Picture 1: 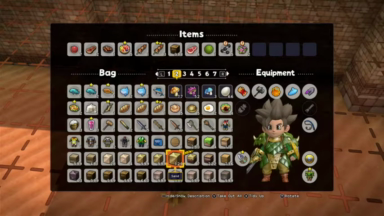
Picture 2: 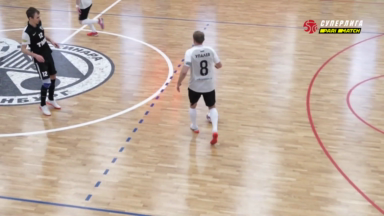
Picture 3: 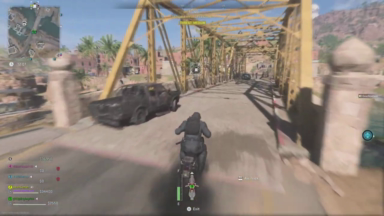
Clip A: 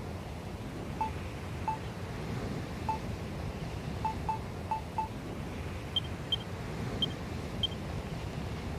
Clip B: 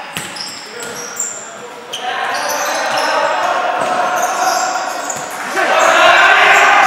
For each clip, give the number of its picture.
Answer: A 1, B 2